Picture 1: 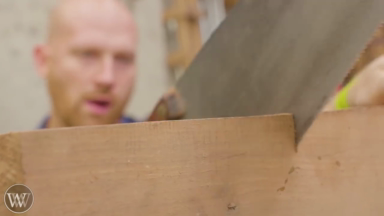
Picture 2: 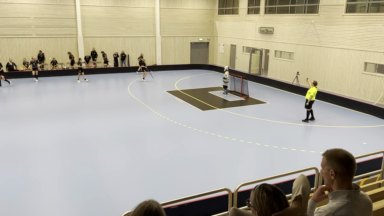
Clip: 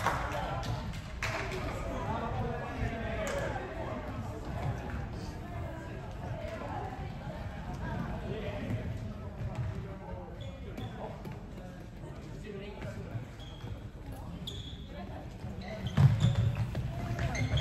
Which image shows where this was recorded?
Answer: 2